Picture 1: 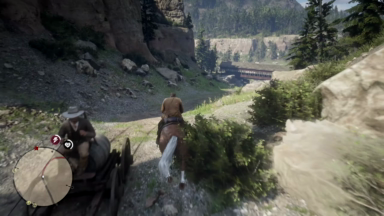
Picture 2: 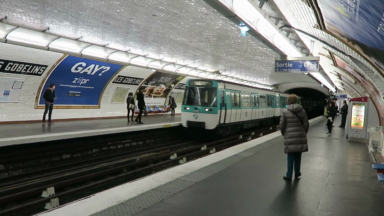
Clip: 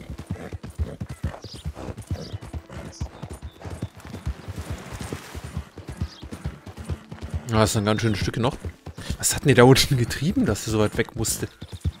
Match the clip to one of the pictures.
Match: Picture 1